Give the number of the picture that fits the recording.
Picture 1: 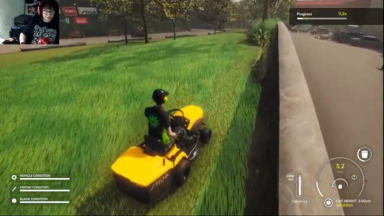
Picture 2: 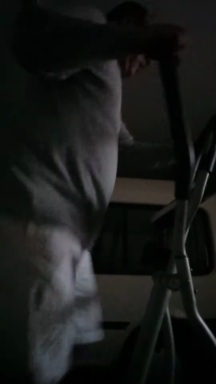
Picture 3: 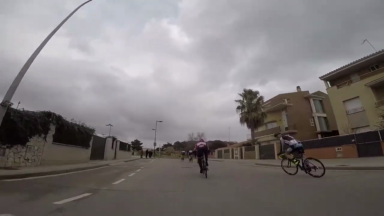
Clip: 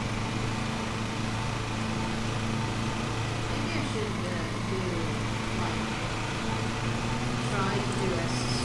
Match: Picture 1